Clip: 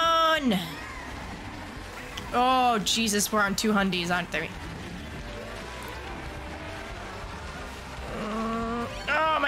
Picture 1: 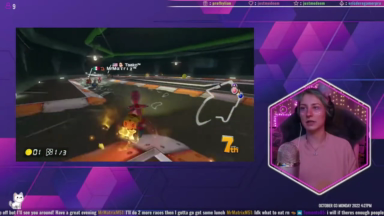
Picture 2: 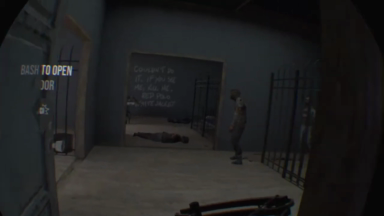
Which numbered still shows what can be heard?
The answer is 1